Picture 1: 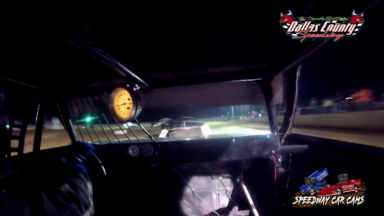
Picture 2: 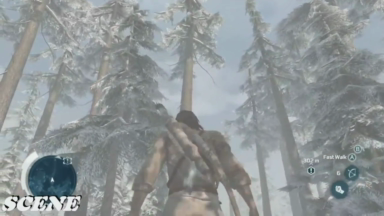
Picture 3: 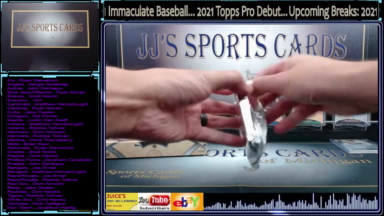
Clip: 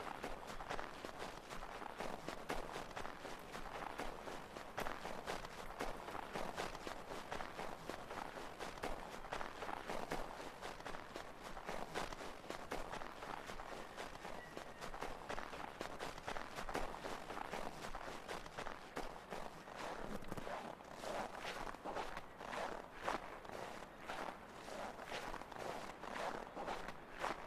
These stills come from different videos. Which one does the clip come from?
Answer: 2